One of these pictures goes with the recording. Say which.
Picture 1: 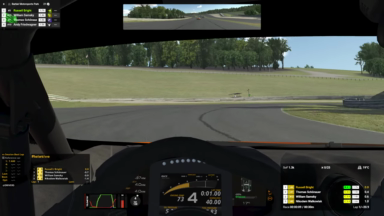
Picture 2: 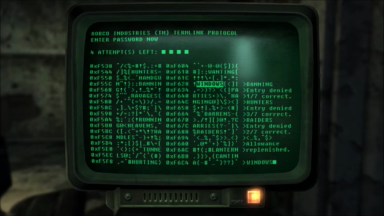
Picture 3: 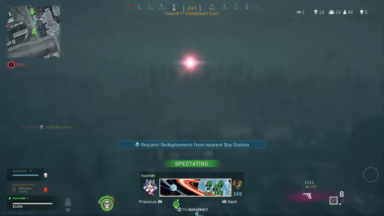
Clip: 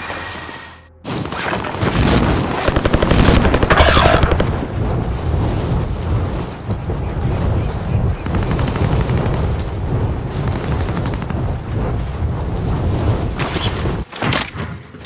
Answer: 3